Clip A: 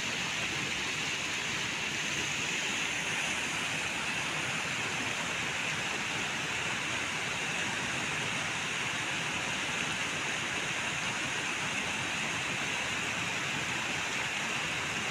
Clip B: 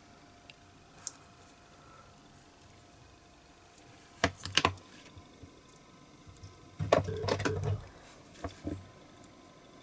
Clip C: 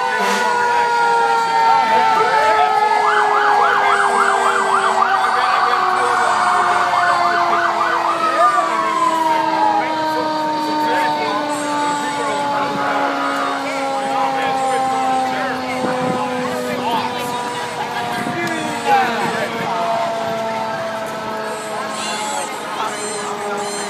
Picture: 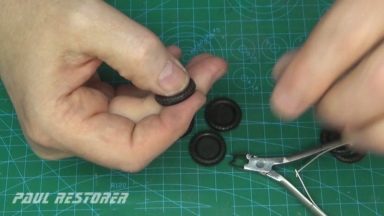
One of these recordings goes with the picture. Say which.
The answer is B